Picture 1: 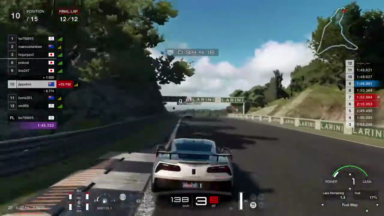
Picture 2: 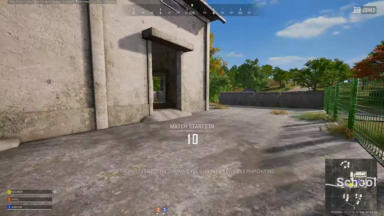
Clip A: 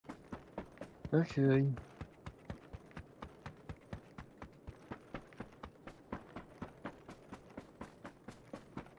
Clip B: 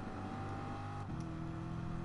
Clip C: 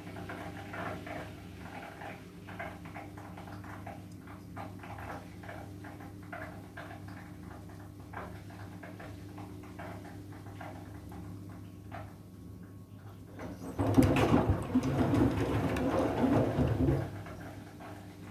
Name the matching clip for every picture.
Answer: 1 B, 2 A